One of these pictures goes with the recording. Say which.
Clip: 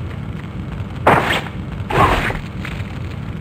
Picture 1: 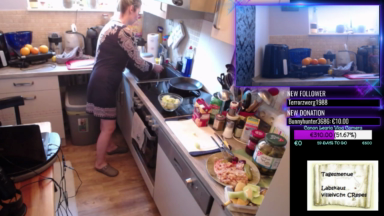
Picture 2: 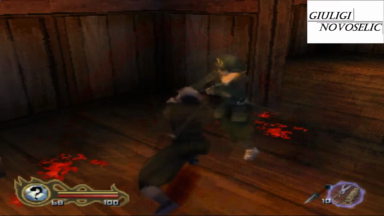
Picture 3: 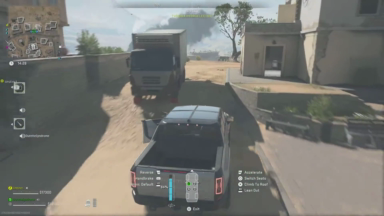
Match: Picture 2